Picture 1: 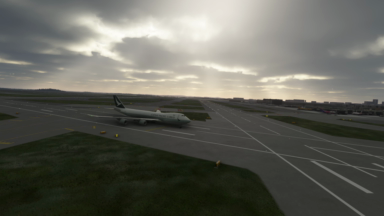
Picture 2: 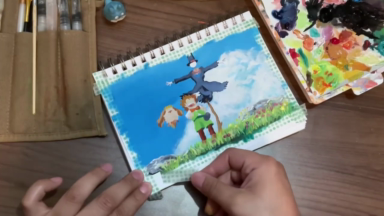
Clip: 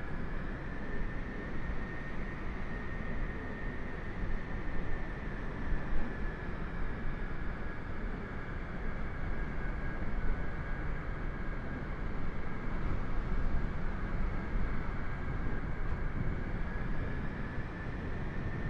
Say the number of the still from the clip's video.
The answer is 1